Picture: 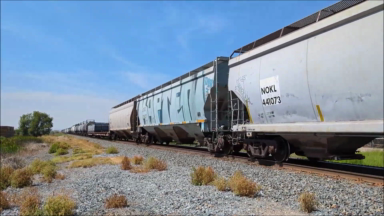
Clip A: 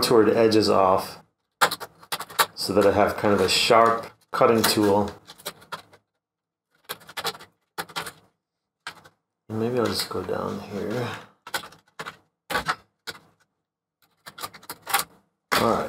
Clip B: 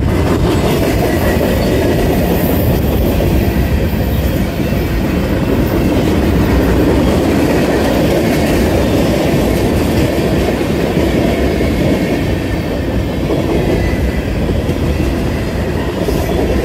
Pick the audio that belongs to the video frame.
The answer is B